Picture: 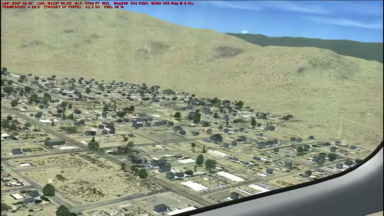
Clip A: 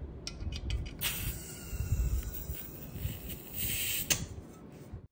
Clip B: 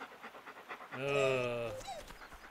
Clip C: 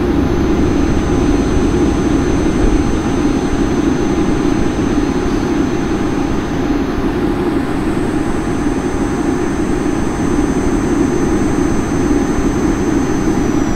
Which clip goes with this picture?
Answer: C